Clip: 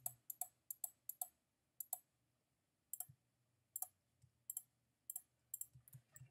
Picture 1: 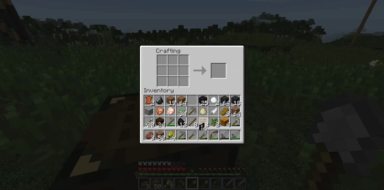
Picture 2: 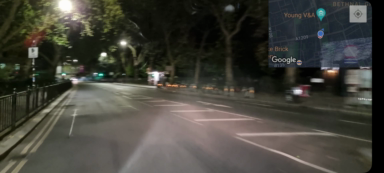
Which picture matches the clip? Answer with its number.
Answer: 1